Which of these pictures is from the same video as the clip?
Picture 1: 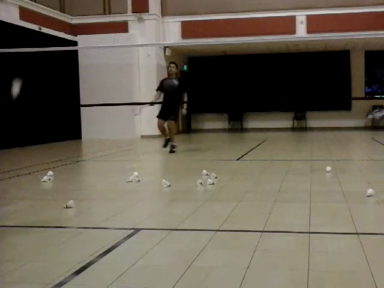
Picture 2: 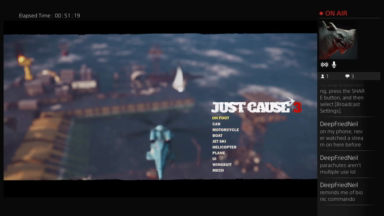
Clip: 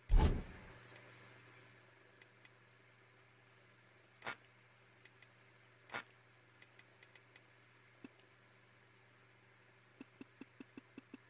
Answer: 2